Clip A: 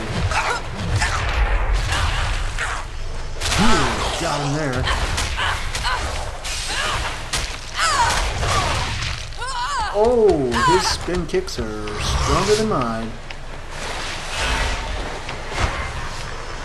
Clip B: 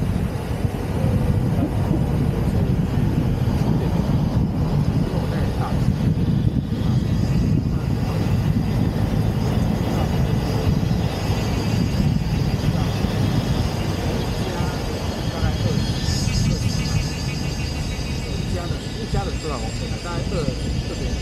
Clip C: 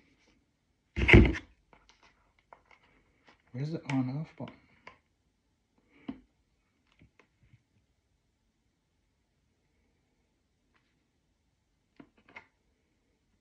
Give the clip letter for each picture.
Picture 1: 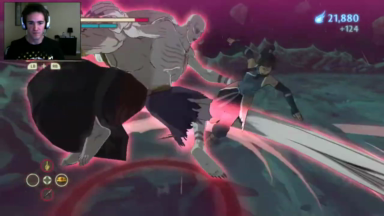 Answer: A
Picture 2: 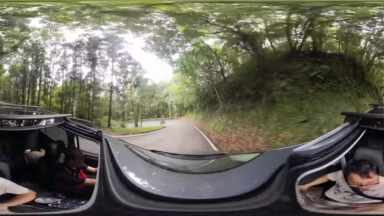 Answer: B